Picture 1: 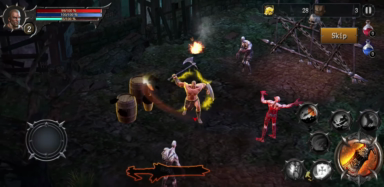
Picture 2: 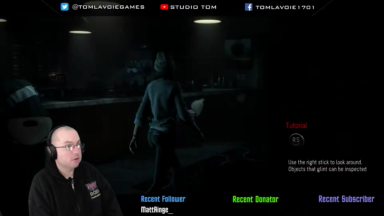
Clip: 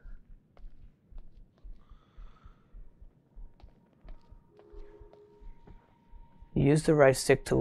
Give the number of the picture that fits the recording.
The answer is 2